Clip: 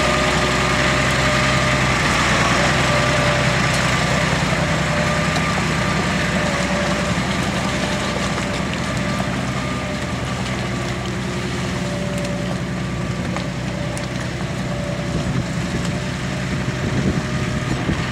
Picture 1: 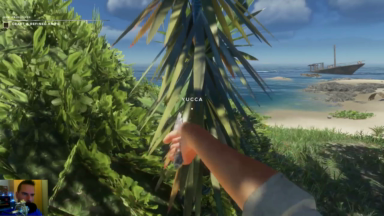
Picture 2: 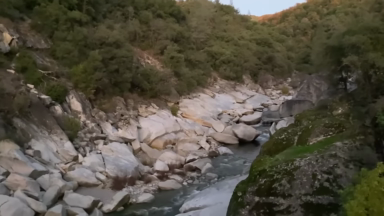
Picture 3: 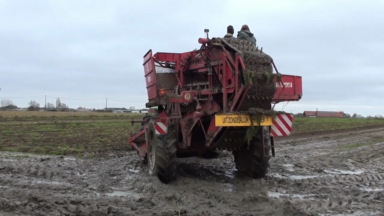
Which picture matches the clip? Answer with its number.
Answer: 3